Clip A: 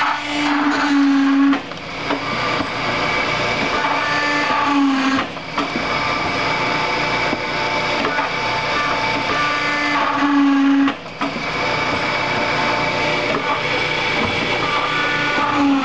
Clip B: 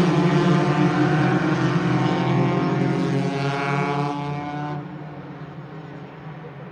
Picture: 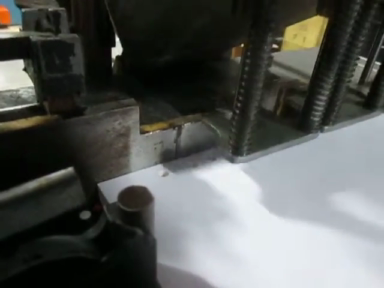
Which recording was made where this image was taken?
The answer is A